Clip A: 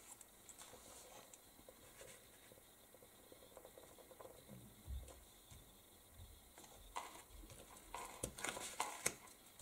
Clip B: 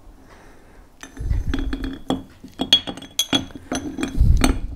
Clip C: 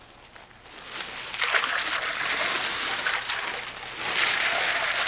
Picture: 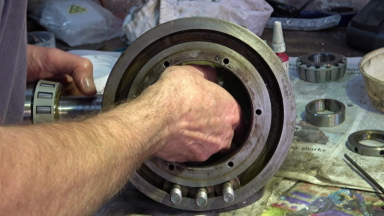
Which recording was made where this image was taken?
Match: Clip B